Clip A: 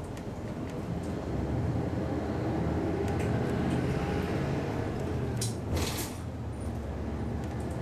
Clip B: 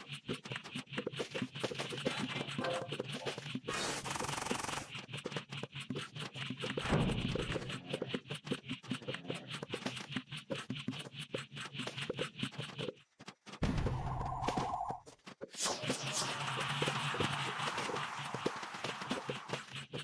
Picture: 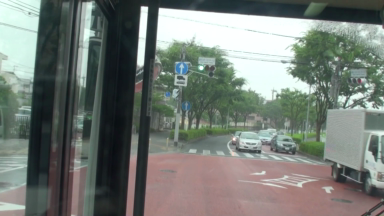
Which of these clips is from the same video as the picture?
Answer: A